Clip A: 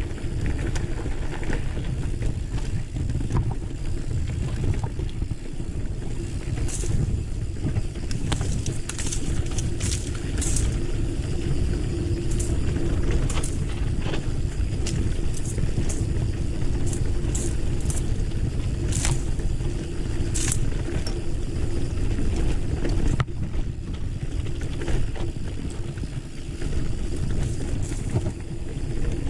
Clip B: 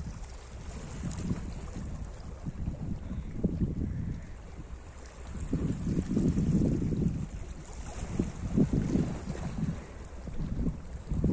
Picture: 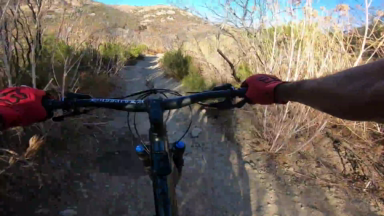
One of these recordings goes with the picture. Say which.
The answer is A